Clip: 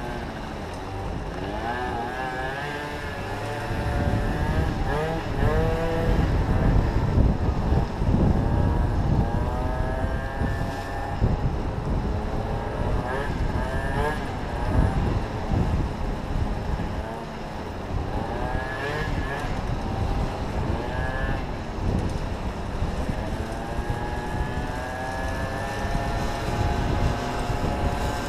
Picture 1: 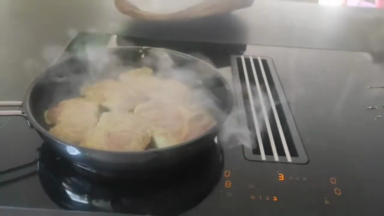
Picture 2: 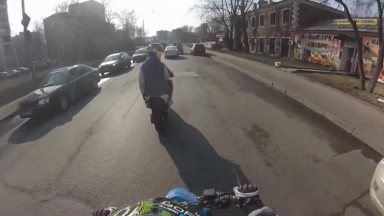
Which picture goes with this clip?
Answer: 2